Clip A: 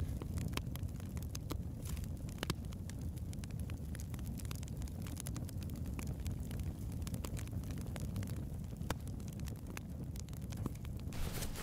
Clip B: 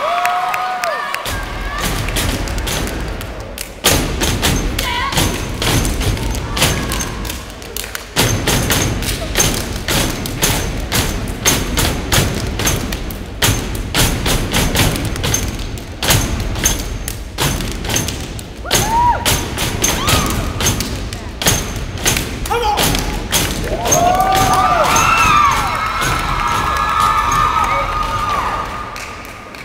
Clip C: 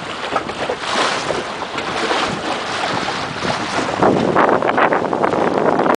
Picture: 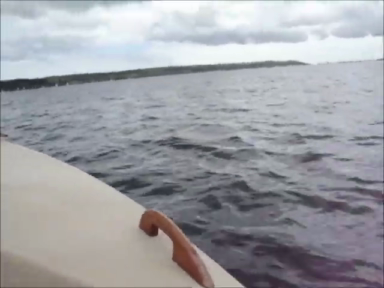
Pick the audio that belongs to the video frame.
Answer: C